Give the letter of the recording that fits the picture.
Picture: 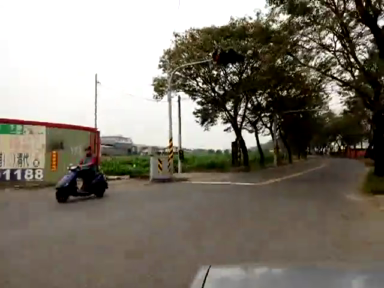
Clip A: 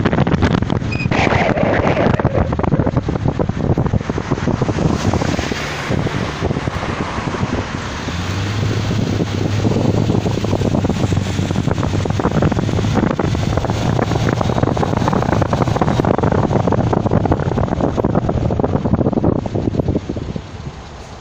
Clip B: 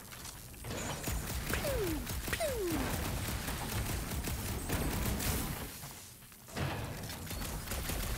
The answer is A